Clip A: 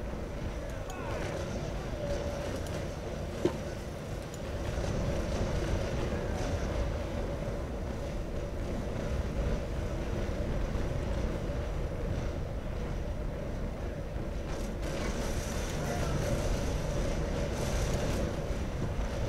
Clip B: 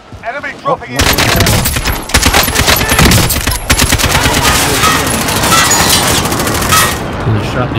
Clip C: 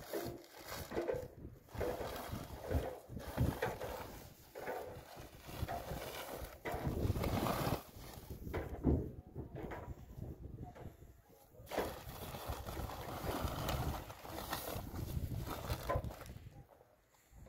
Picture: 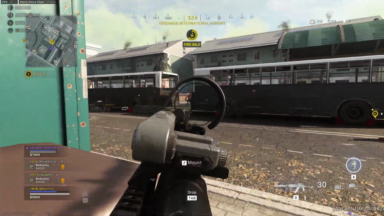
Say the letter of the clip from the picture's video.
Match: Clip B